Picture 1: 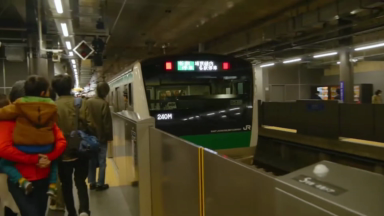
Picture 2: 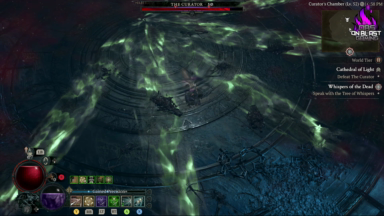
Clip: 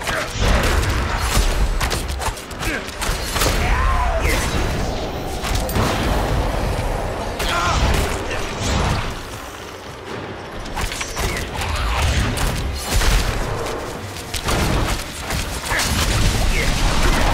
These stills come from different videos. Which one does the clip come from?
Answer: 2